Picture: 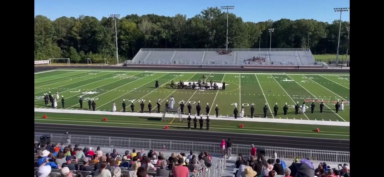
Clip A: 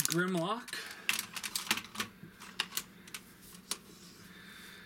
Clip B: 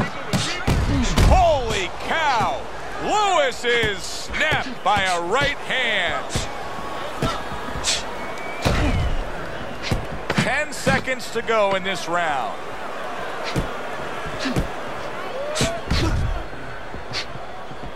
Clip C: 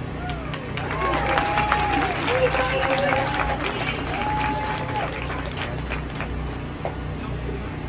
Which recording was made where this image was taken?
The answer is C